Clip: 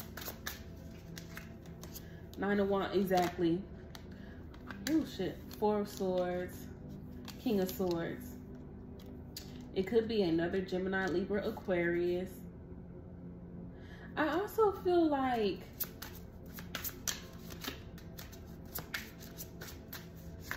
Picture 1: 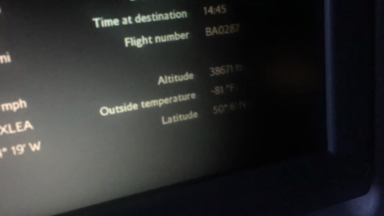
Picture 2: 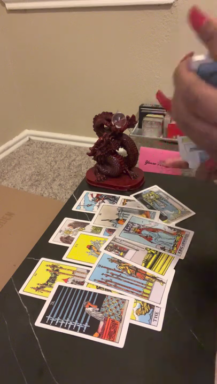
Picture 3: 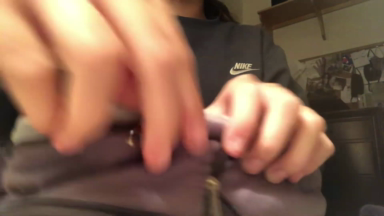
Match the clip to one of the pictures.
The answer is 2